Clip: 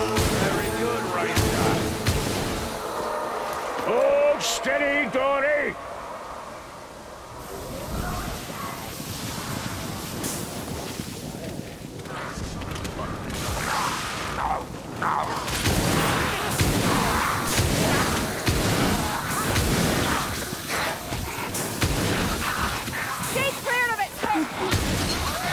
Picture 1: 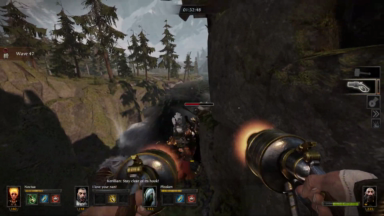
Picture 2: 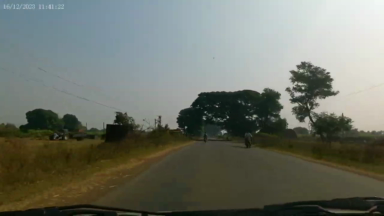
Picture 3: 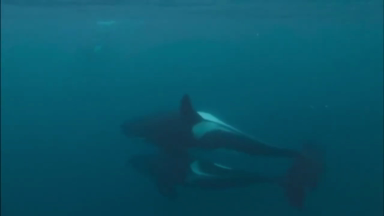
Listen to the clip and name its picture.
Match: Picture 1